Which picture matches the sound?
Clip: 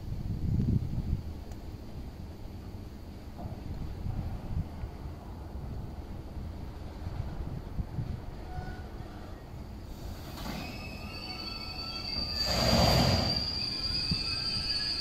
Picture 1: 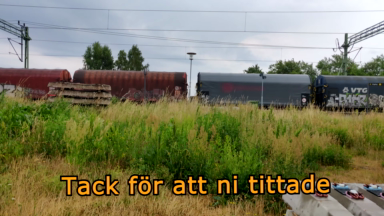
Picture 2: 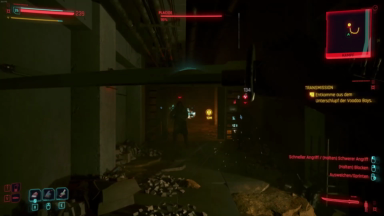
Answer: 1